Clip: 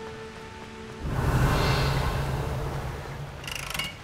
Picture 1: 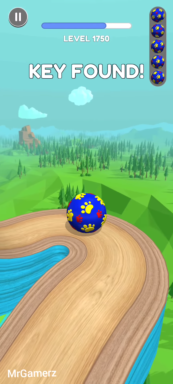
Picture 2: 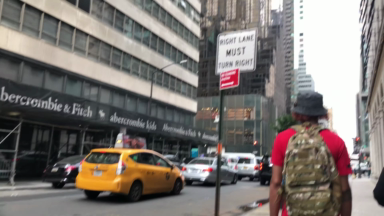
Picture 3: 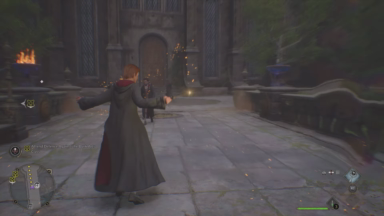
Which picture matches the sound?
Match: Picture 3